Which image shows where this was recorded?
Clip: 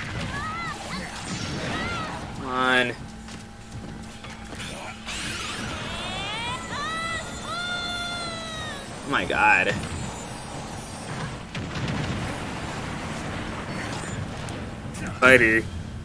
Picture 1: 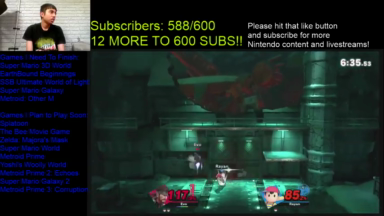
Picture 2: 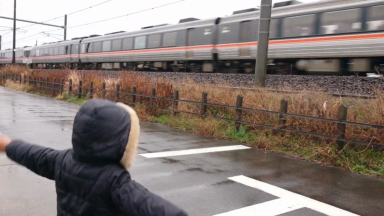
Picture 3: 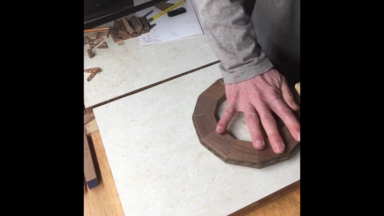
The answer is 1